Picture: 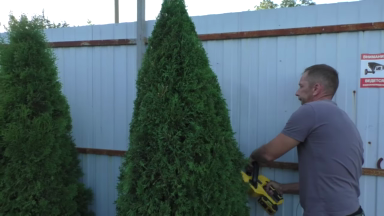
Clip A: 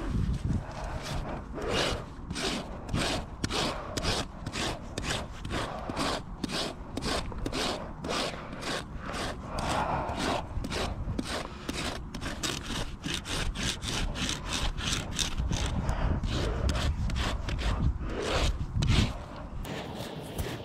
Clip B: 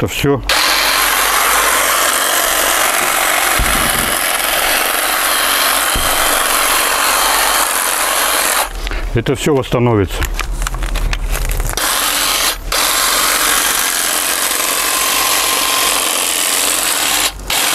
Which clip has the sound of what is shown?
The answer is B